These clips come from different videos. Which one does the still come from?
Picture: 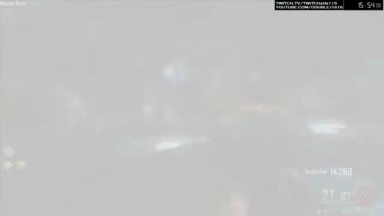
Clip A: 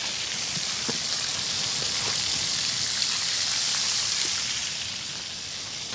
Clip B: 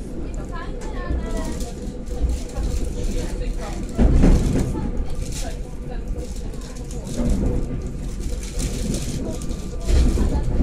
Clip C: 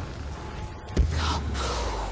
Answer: C